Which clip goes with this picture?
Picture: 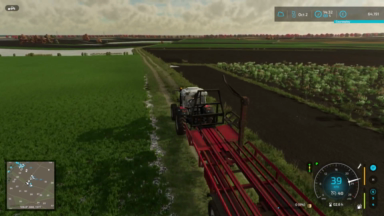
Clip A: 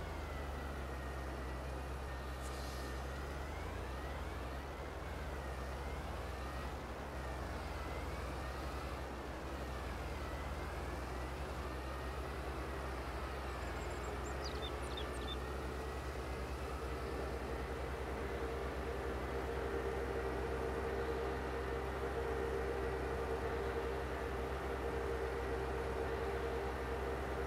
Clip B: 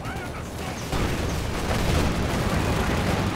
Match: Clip A